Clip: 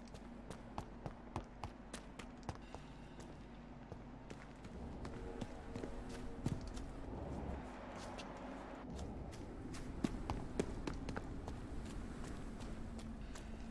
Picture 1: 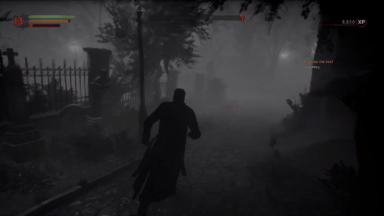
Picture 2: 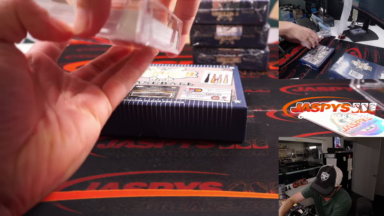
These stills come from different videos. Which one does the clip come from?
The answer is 1